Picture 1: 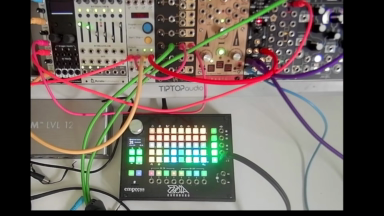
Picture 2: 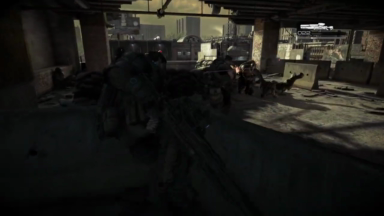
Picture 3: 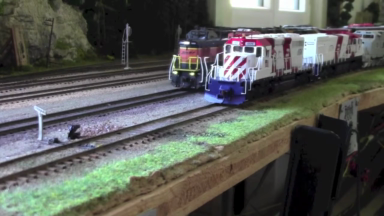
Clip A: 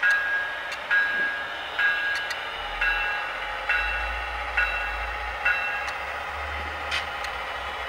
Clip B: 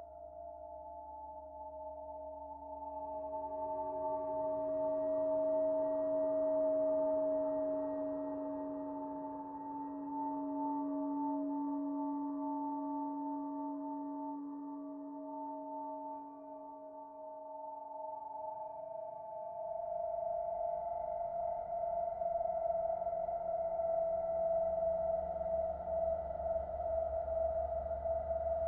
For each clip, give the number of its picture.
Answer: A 3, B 1